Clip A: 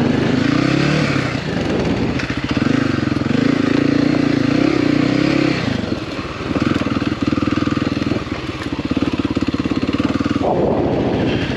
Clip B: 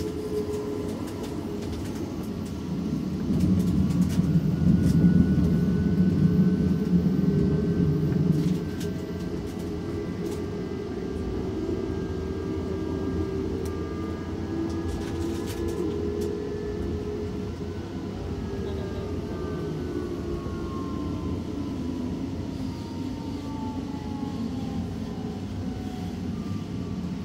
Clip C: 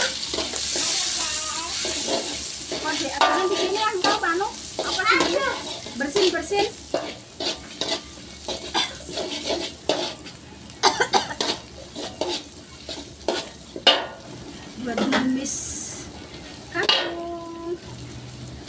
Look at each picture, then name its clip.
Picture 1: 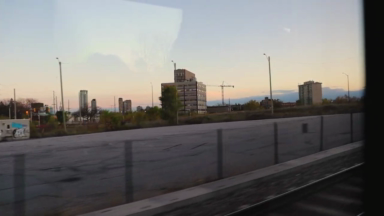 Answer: B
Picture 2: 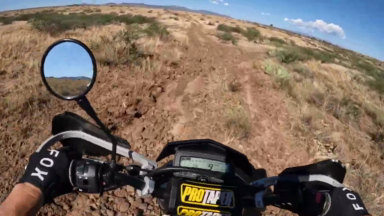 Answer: A